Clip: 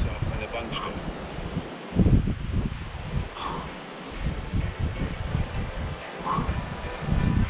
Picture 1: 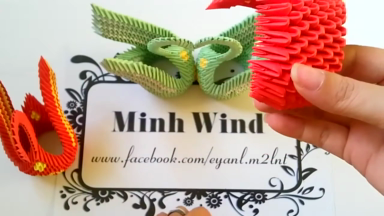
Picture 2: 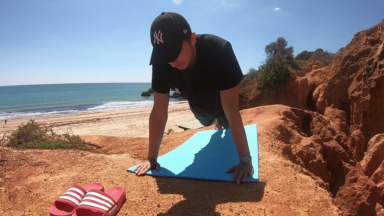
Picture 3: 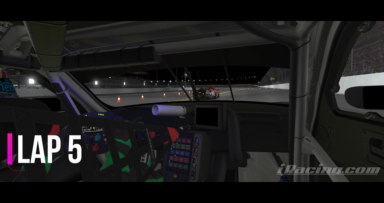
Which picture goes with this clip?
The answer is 2